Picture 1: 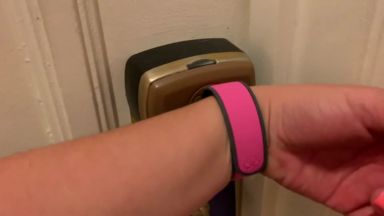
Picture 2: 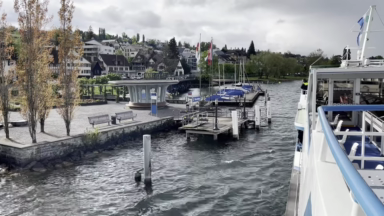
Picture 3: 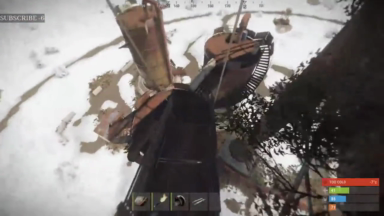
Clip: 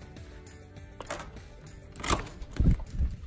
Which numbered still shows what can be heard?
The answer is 1